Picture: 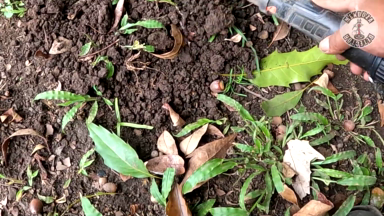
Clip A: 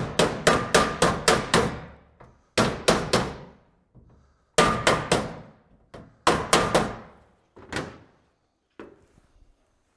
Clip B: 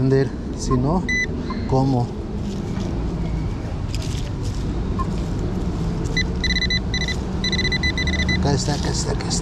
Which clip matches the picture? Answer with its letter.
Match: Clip B